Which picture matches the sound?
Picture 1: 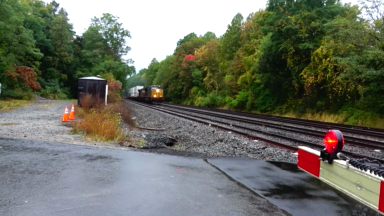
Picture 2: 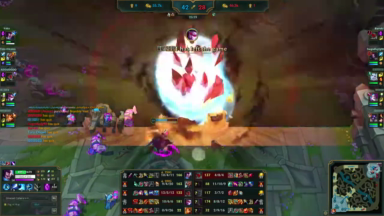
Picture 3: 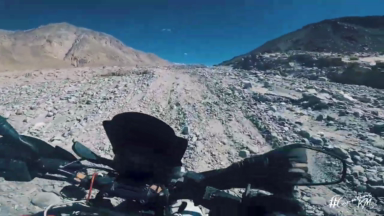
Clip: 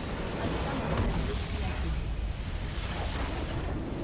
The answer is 2